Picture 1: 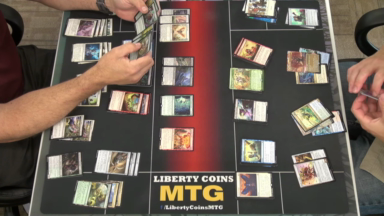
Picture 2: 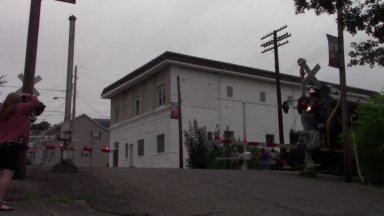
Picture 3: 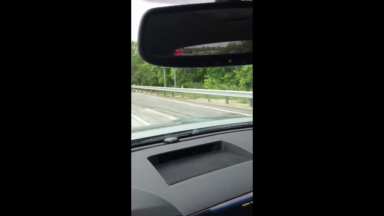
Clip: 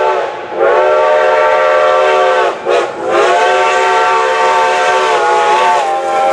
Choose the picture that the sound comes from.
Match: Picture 2